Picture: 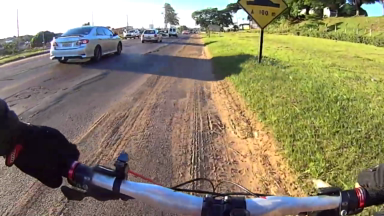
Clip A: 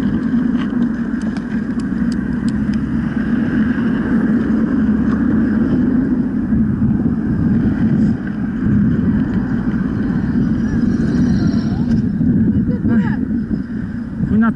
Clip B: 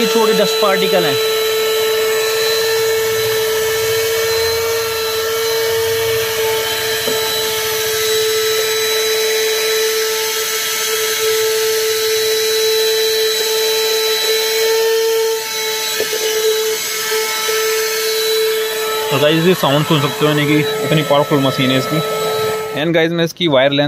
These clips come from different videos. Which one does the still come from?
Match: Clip A